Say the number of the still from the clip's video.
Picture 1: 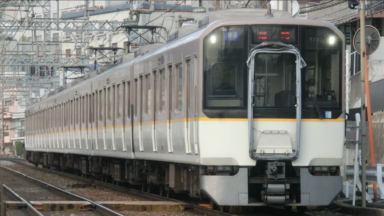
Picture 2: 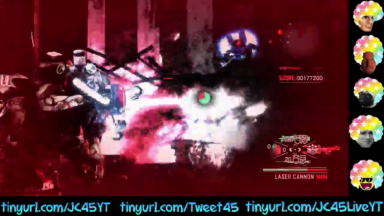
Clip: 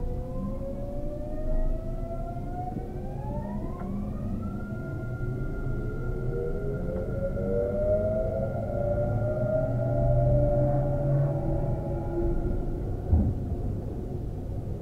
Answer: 1